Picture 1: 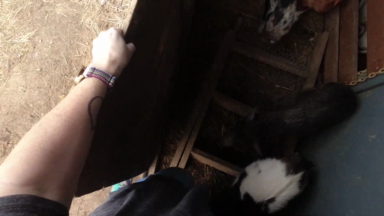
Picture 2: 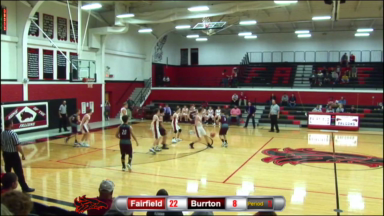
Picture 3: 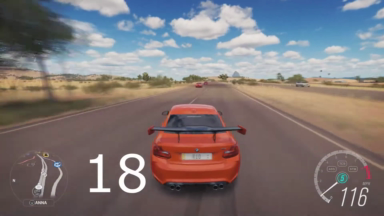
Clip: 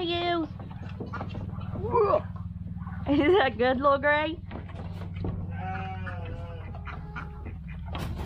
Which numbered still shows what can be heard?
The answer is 1